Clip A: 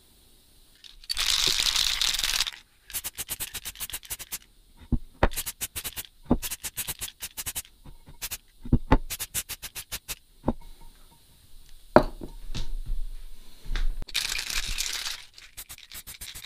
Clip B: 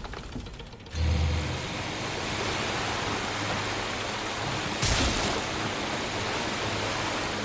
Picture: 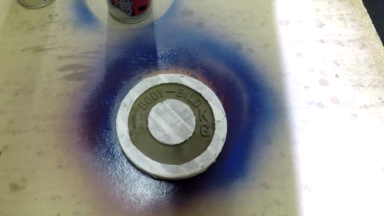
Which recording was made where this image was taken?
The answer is A